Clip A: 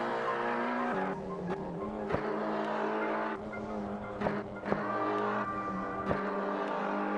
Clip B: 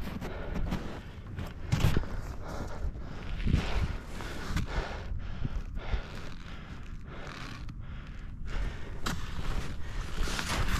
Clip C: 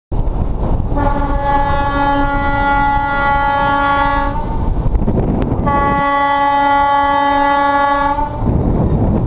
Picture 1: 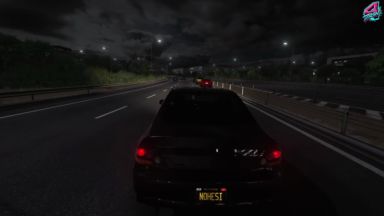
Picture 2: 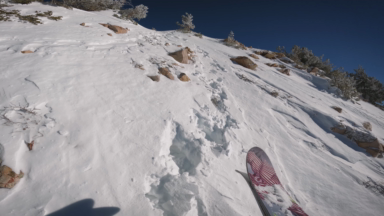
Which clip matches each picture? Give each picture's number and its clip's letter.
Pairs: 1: A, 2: B